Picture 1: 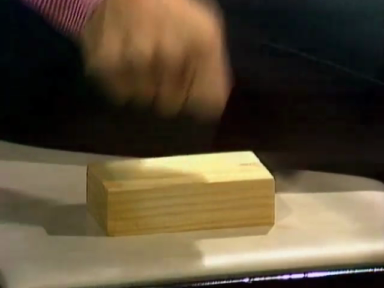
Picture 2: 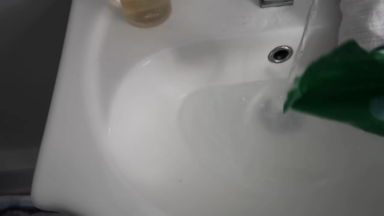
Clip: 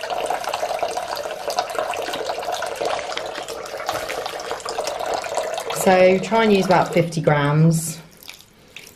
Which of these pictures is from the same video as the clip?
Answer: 2